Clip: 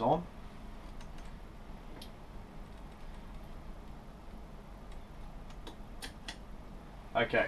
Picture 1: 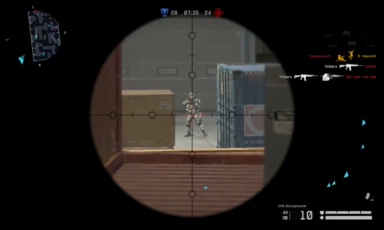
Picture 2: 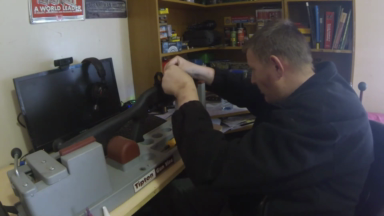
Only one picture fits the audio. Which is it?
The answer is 2